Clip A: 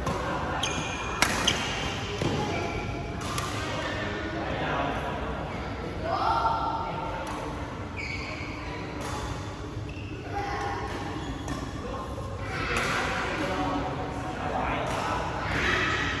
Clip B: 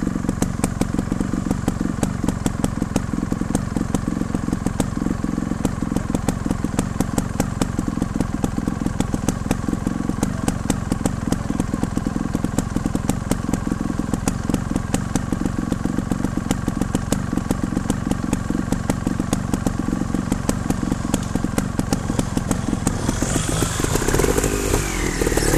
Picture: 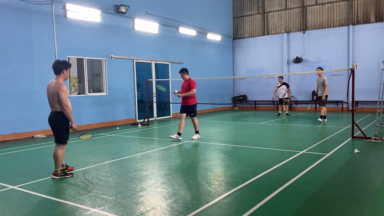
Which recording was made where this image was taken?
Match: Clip A